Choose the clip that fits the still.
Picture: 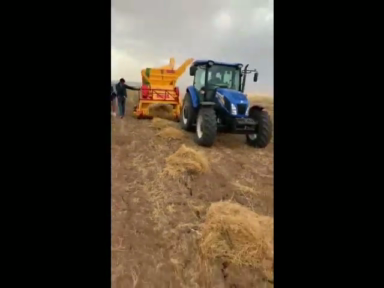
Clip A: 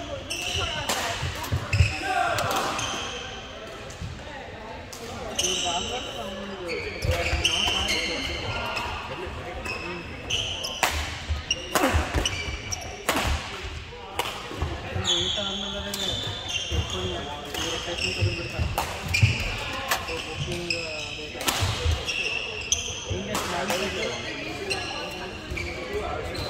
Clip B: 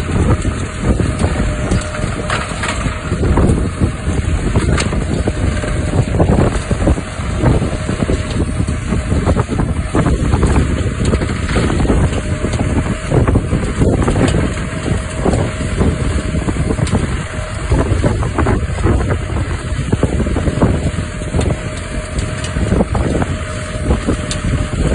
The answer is B